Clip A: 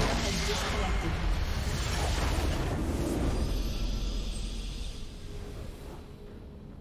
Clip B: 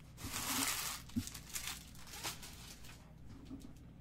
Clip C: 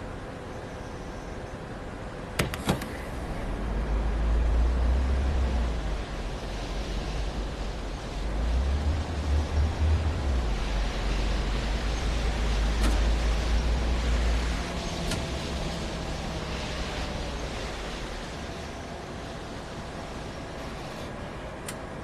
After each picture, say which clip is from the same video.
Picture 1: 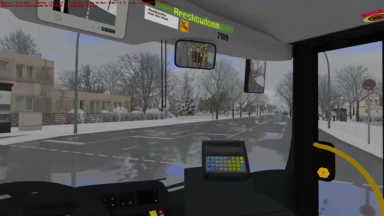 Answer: C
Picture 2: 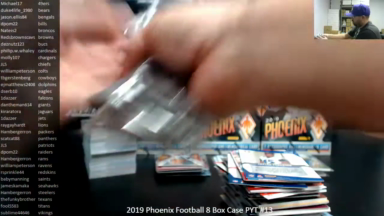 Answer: B